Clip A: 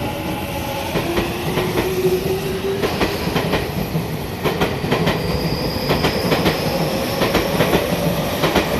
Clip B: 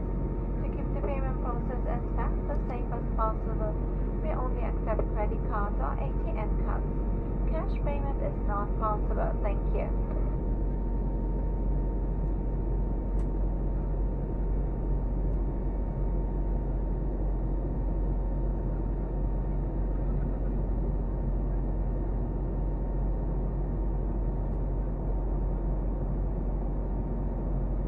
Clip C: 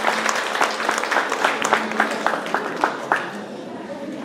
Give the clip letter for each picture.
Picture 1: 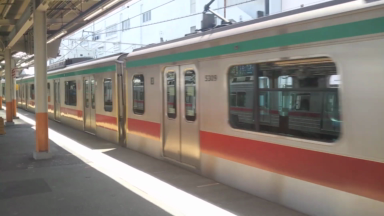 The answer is A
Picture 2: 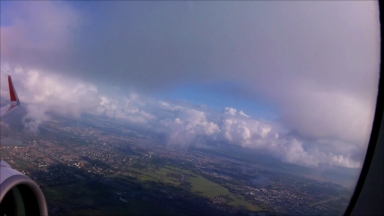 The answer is B